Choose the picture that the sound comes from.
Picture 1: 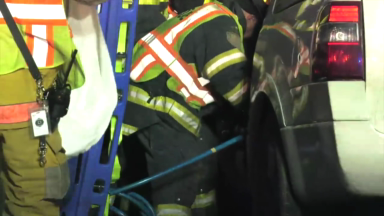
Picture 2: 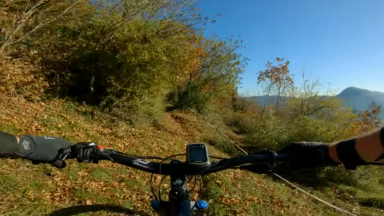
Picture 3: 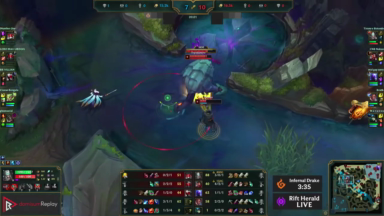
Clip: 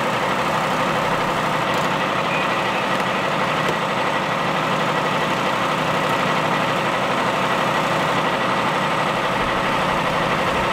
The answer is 1